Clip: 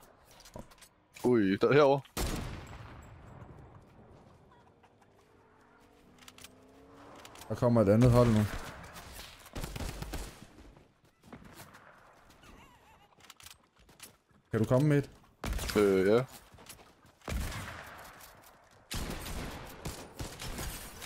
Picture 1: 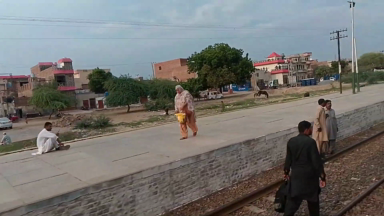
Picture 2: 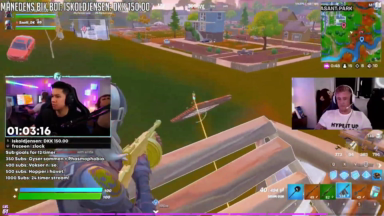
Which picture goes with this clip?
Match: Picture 2